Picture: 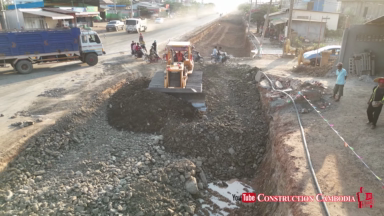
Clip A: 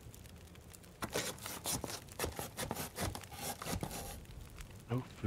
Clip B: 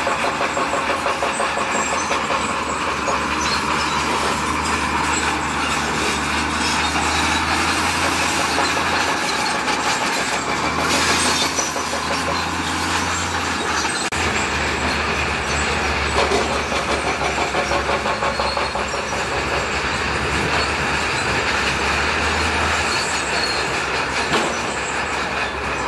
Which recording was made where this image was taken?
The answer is B